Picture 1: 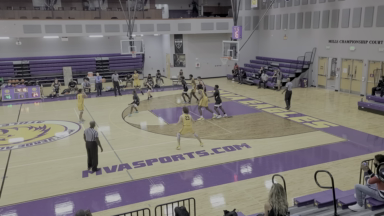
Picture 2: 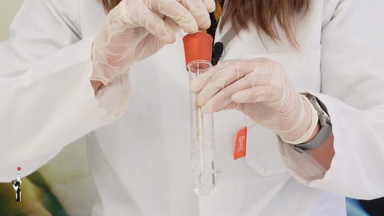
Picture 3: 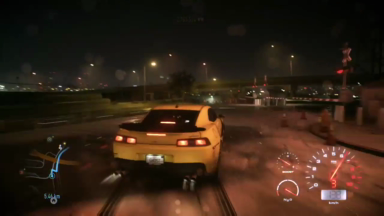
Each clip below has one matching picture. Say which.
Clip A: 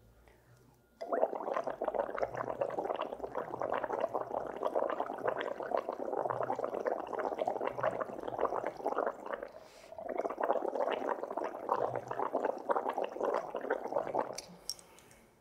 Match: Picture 2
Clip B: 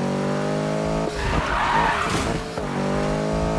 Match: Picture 3